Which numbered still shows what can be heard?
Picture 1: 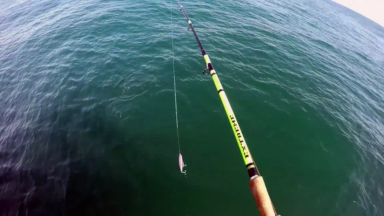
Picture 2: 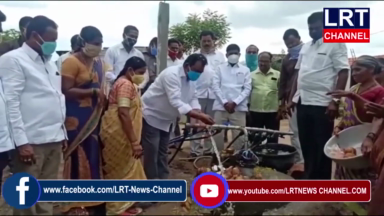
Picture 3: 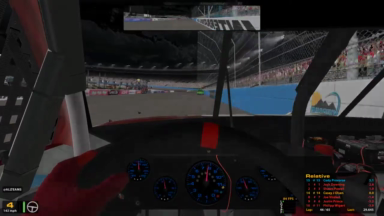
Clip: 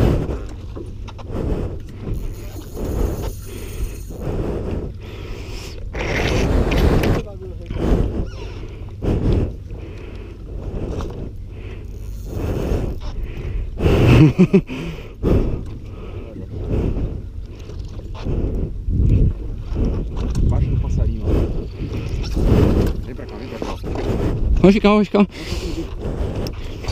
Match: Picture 1